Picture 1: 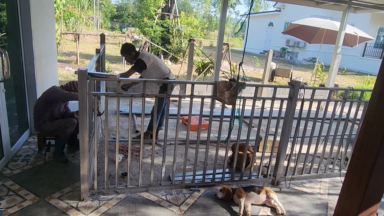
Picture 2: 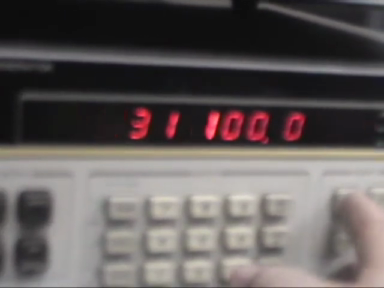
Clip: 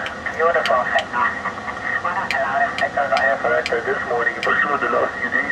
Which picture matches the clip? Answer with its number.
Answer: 2